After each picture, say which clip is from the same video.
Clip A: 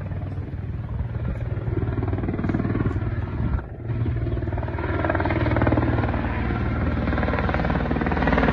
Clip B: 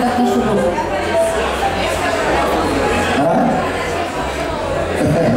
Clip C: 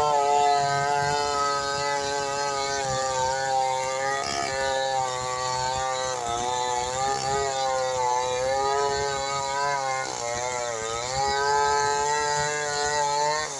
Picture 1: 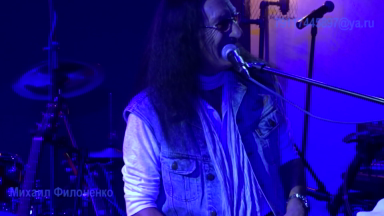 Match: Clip B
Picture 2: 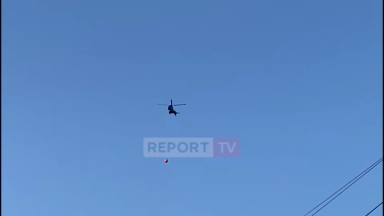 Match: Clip A